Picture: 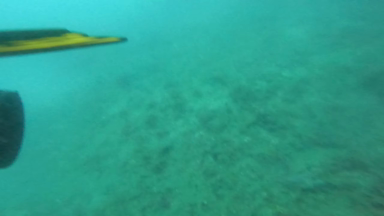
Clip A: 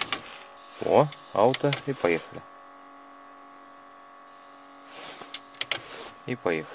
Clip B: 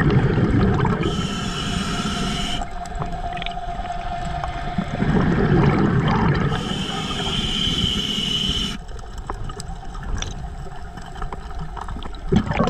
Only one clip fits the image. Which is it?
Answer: B